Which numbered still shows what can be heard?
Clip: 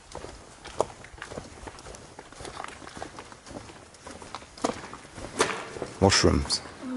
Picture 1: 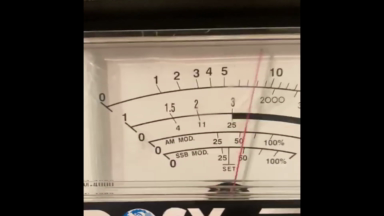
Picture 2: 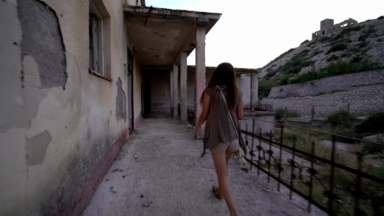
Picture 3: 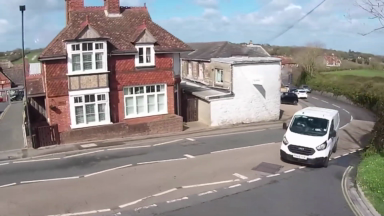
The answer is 2